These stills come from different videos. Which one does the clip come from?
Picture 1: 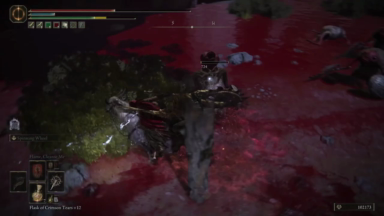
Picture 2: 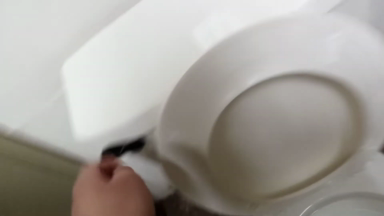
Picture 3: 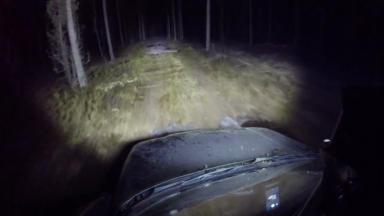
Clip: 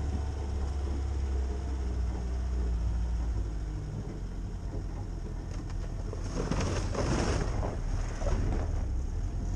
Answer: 3